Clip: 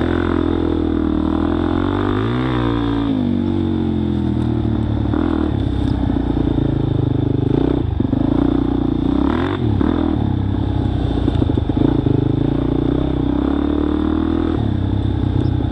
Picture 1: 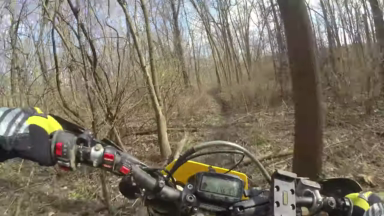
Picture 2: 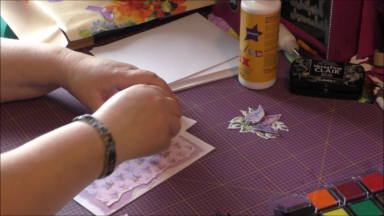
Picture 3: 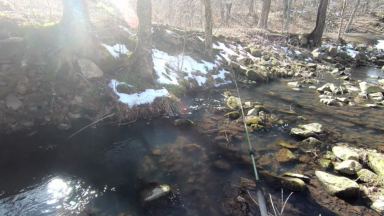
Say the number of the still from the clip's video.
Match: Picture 1